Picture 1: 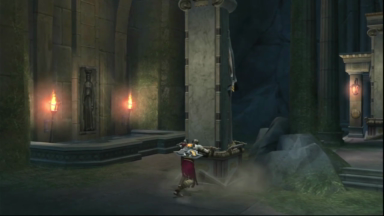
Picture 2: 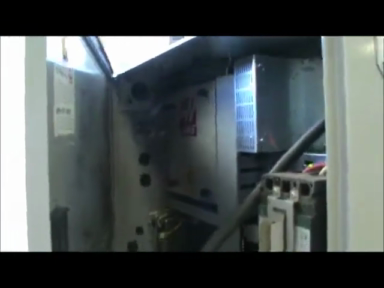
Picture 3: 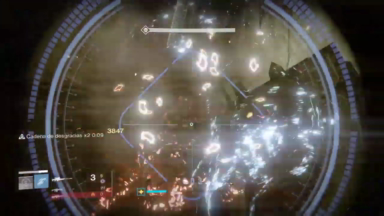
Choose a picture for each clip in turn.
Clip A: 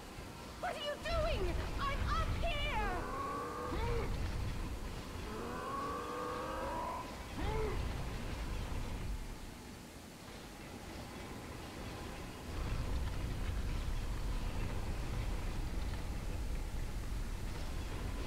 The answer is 1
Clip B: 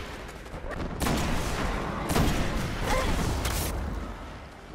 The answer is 3